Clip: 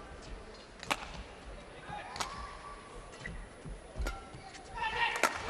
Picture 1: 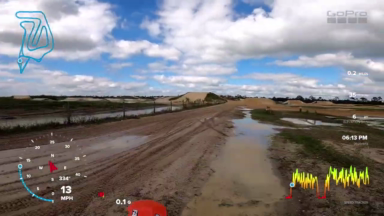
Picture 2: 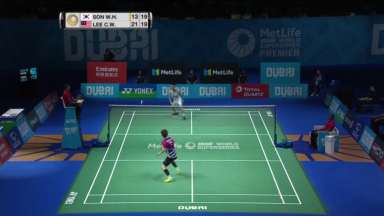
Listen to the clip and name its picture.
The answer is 2